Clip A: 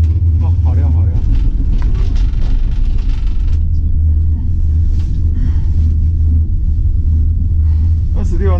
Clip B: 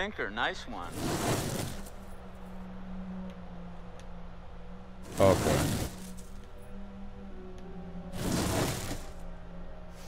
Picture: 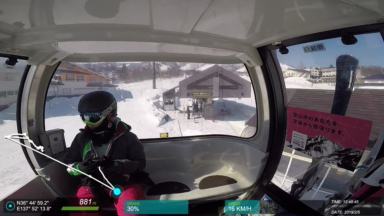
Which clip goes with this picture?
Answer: A